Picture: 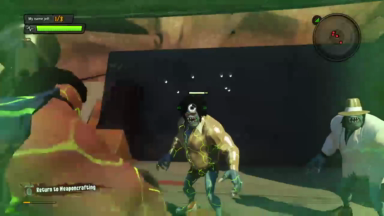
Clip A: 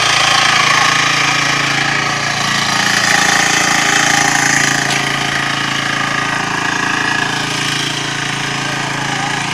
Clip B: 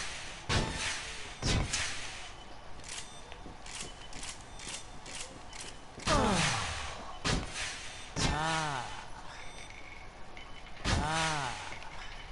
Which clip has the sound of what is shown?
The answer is B